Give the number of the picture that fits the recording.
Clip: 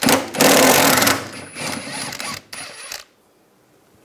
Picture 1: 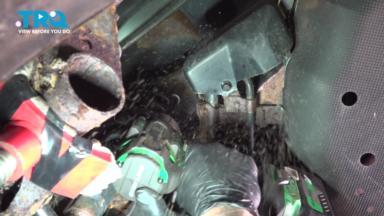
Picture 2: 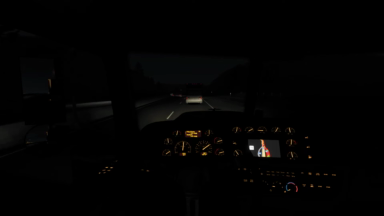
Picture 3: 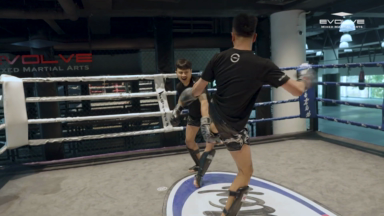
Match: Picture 1